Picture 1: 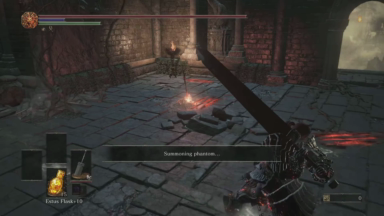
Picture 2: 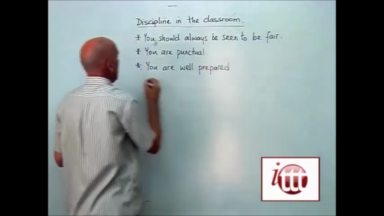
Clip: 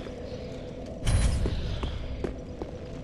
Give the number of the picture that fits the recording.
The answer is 1